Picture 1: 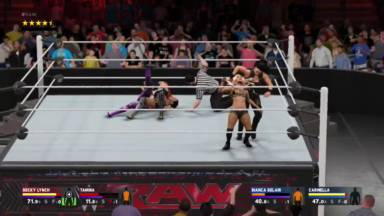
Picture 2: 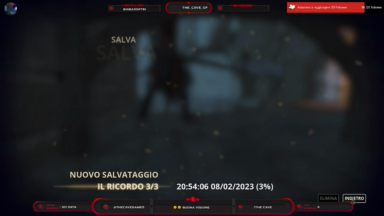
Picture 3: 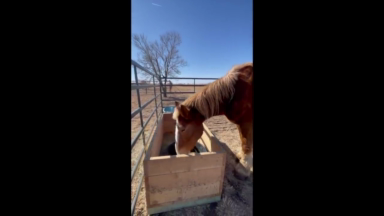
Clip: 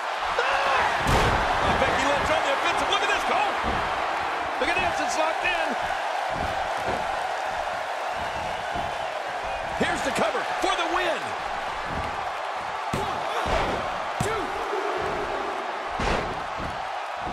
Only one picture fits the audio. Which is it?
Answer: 1